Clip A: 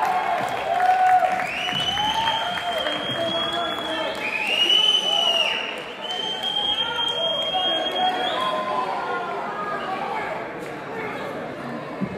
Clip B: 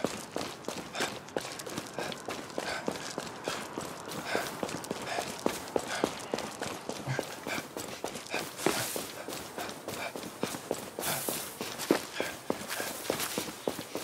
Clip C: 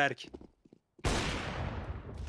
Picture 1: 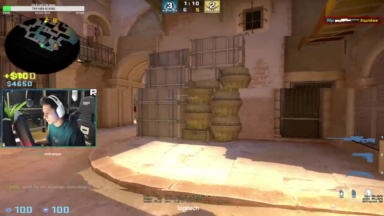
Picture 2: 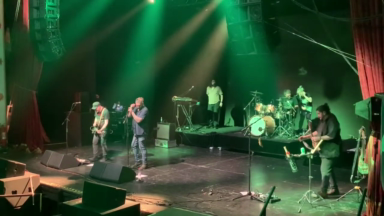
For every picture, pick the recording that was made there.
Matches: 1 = C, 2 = A